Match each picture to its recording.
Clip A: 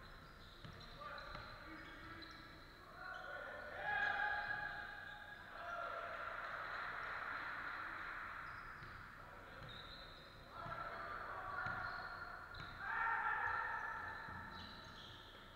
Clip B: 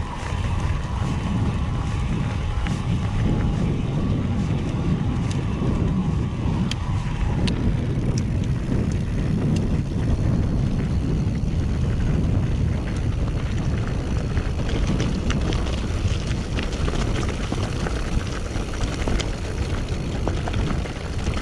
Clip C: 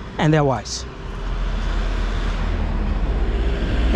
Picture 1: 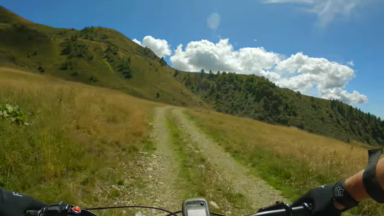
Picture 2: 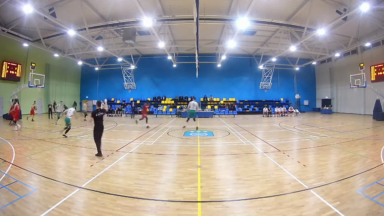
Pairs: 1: B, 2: A